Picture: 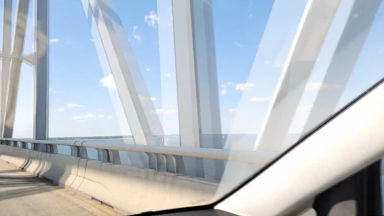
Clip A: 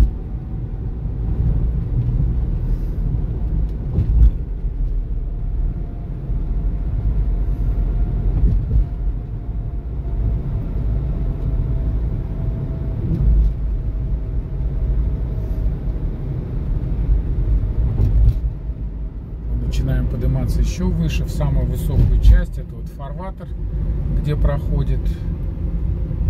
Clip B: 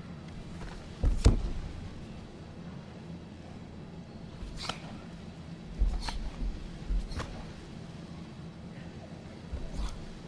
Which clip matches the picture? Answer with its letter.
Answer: A